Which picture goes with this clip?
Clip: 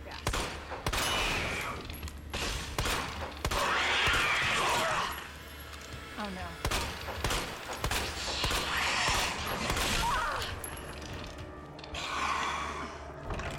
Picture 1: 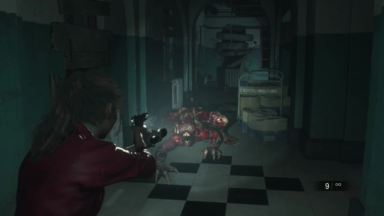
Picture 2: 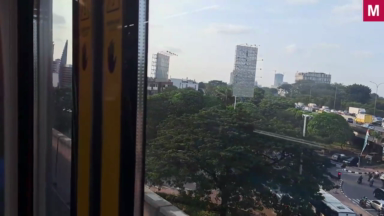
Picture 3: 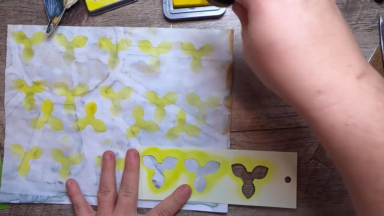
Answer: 1